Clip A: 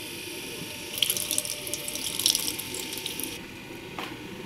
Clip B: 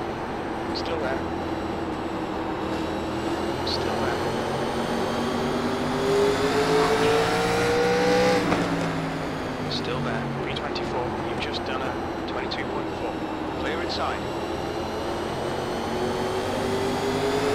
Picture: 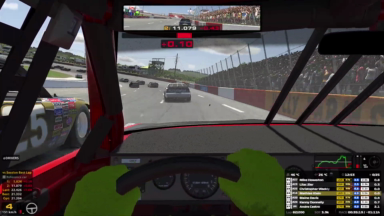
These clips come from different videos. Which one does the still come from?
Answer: B